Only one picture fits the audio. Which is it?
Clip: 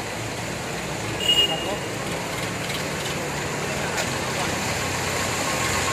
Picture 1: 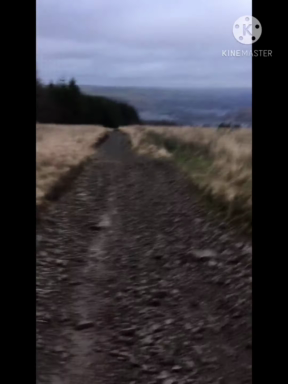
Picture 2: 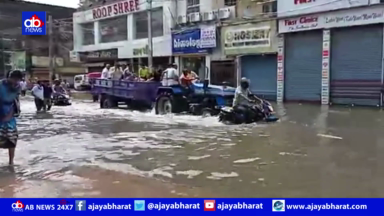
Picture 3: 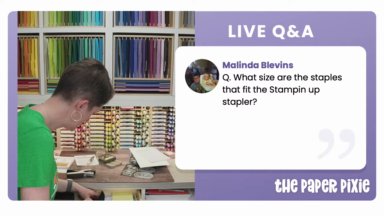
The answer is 2